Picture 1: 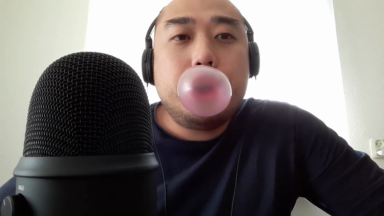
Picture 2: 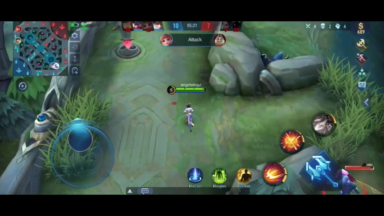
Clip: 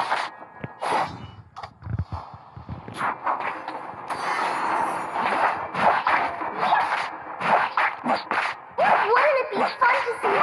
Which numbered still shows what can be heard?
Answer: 2